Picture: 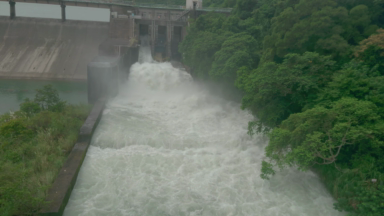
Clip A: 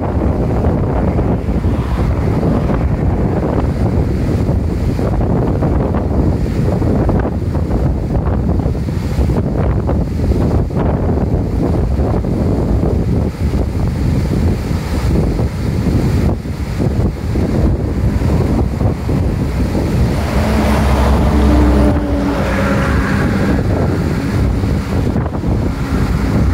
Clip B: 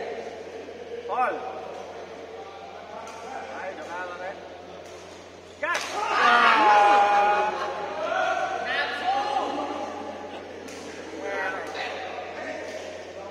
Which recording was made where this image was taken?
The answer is A